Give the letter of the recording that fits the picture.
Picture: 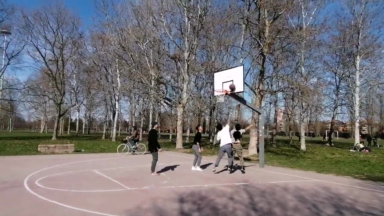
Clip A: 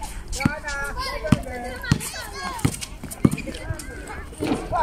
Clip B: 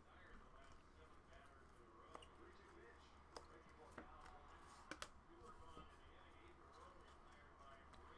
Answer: A